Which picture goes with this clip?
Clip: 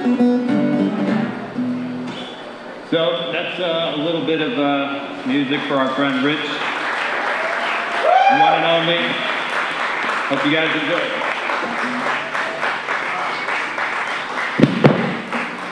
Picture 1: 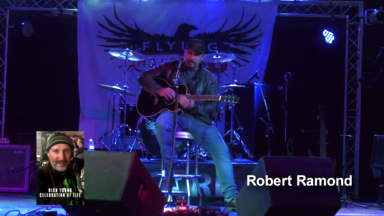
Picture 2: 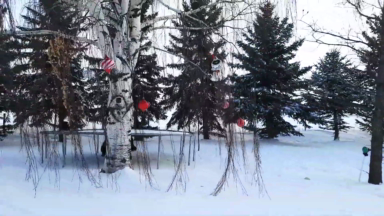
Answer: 1